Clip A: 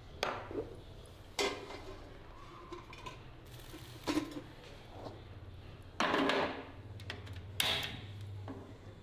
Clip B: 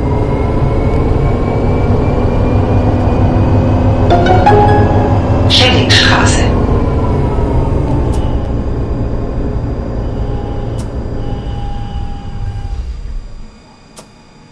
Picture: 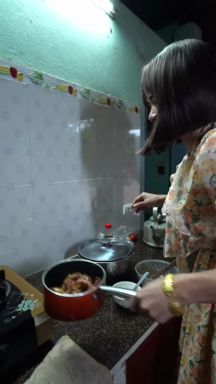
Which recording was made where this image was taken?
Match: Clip A